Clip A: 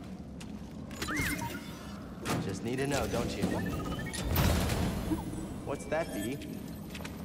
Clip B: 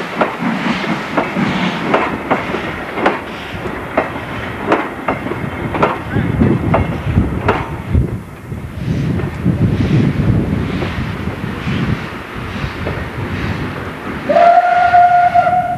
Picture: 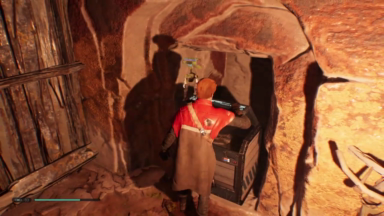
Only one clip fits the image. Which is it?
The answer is A